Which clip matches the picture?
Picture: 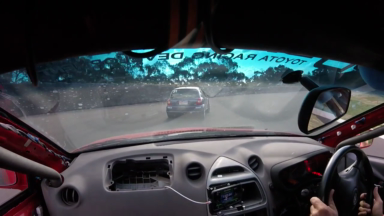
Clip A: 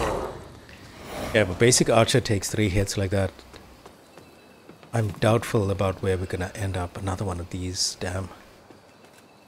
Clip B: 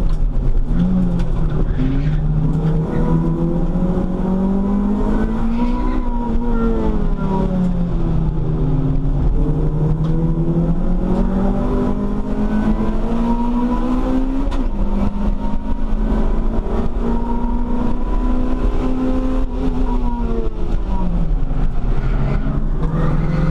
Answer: B